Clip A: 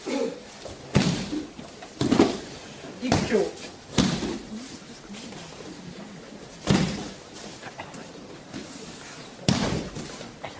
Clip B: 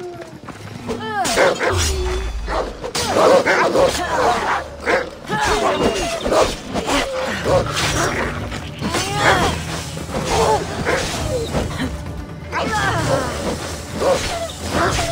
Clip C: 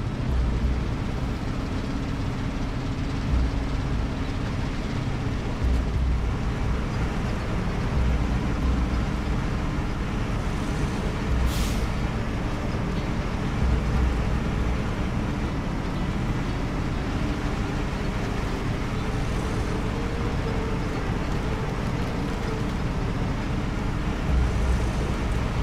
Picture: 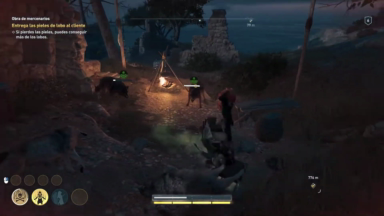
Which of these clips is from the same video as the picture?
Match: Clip B